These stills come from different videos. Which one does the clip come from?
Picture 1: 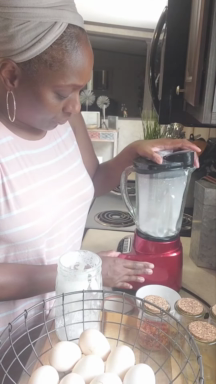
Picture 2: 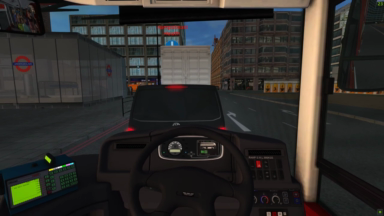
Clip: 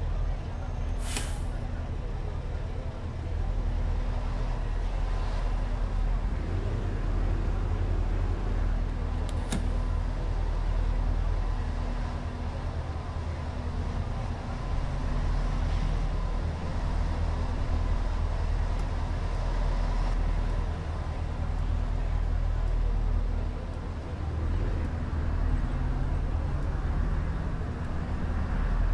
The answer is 2